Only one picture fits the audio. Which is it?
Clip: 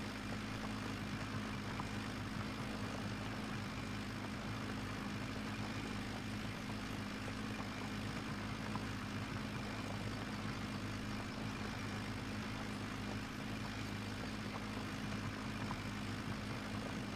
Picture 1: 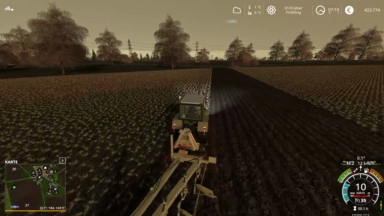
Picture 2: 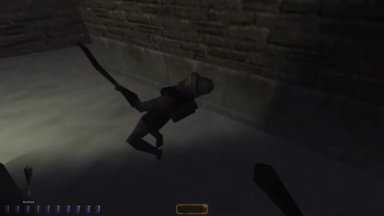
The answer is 1